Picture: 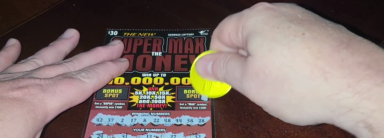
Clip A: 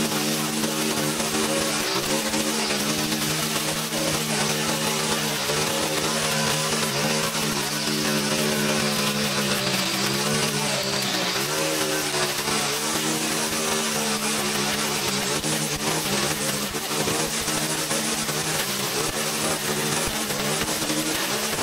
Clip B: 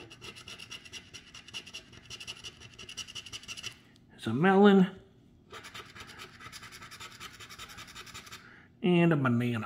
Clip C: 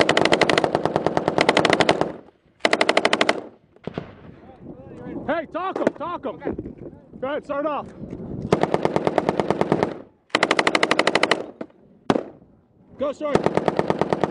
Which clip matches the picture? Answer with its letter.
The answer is B